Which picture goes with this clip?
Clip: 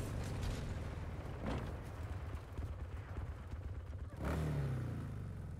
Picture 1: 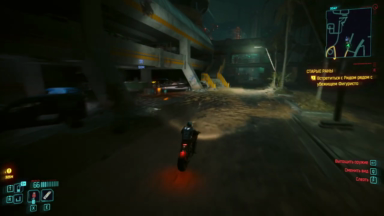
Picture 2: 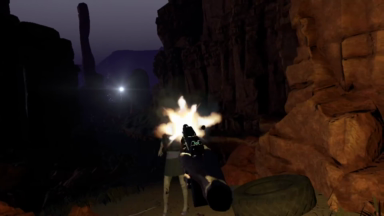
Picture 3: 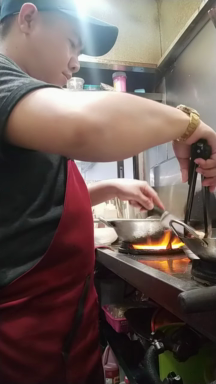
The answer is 1